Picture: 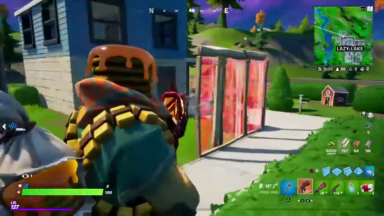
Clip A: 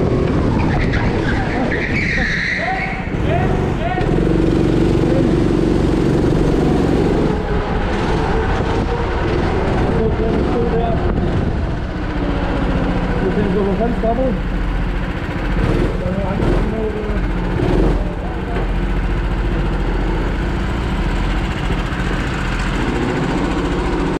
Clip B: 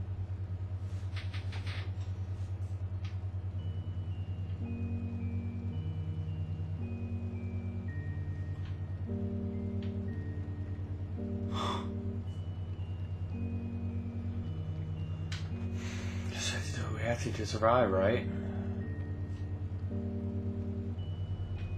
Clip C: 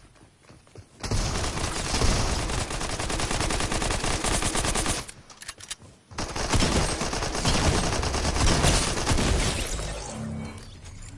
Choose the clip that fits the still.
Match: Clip C